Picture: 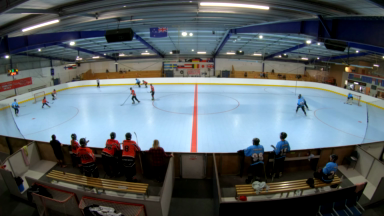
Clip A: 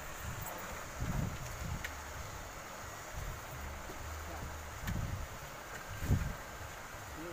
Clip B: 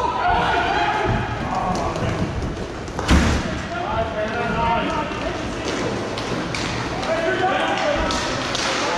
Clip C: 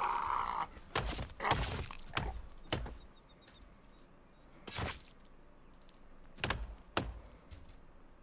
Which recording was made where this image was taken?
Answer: B